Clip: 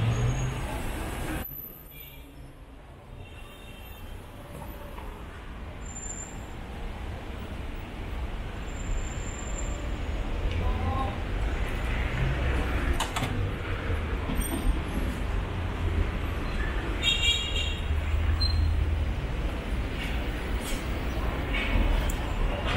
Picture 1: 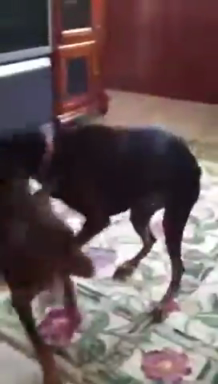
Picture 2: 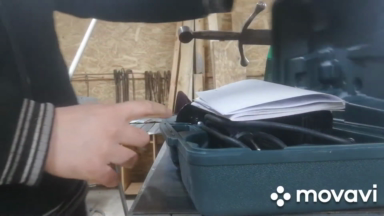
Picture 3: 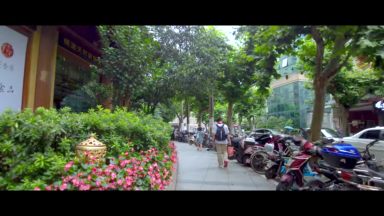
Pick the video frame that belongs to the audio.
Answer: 3